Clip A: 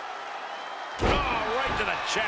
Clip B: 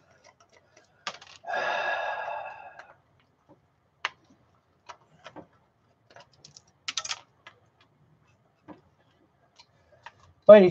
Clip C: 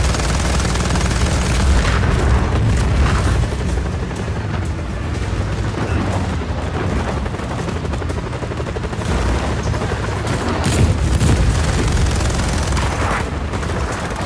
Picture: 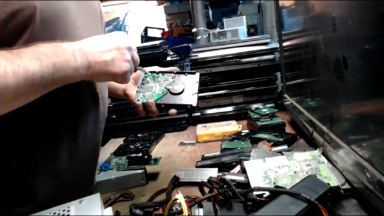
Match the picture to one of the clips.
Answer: B